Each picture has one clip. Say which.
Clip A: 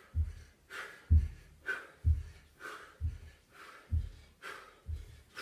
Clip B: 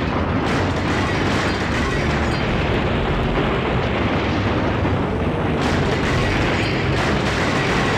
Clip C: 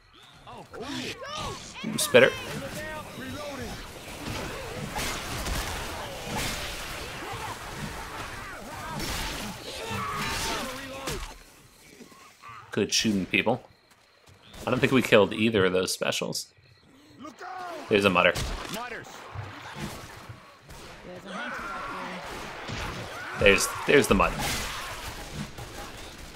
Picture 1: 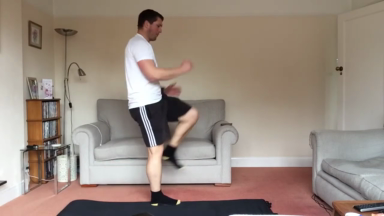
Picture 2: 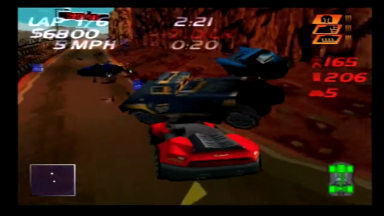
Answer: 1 A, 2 B